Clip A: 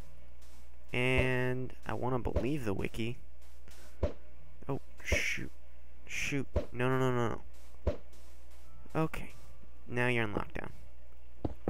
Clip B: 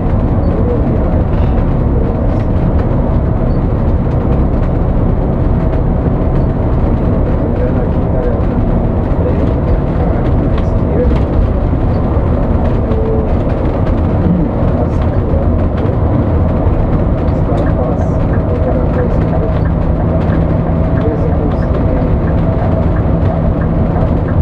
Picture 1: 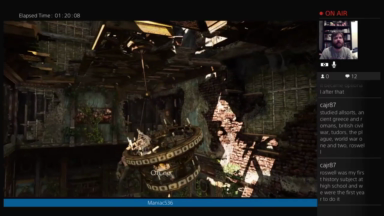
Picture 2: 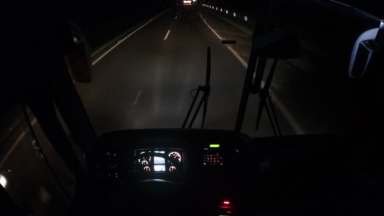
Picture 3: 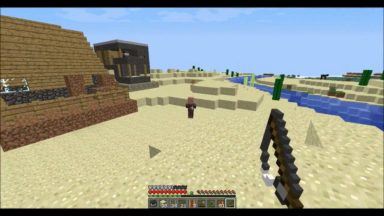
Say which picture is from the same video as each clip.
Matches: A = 3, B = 2